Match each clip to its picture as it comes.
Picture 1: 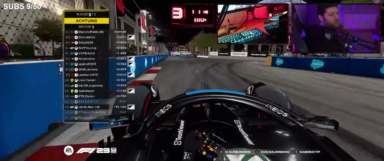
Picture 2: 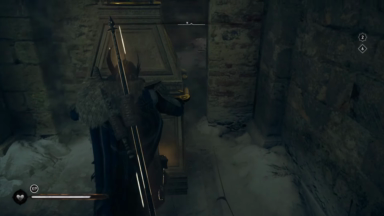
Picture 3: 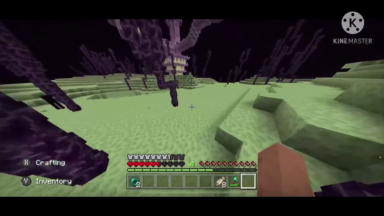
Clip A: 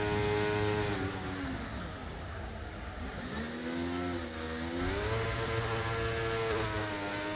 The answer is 1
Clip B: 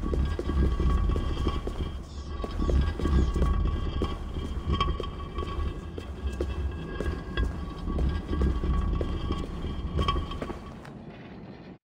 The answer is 2